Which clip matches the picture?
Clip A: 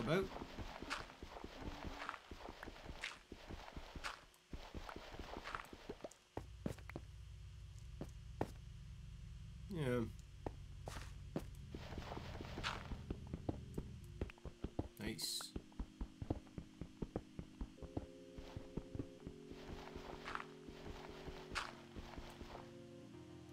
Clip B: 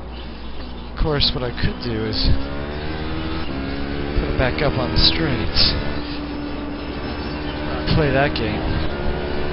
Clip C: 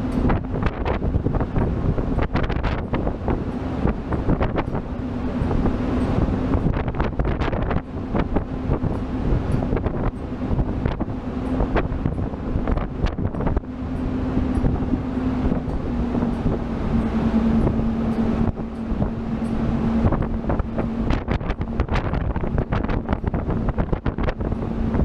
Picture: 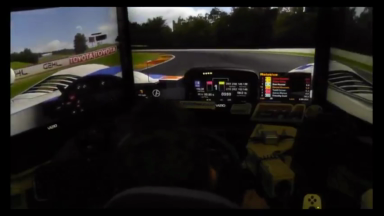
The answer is B